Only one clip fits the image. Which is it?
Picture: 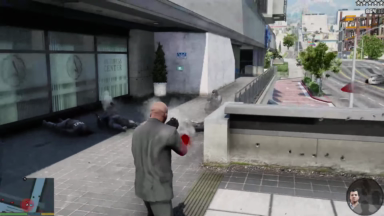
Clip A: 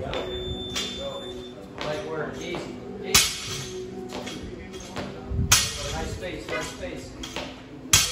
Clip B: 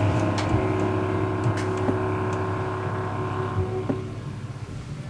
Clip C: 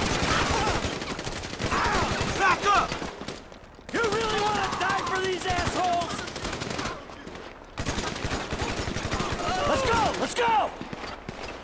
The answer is C